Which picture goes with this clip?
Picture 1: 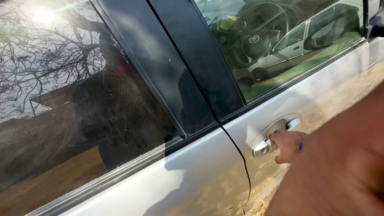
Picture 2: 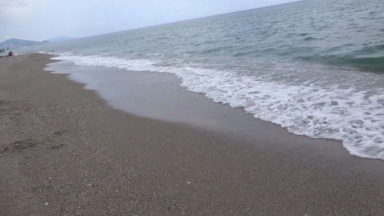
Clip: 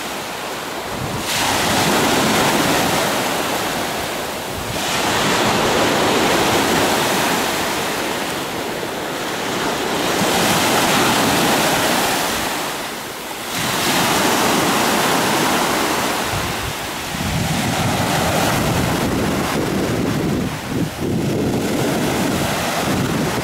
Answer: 2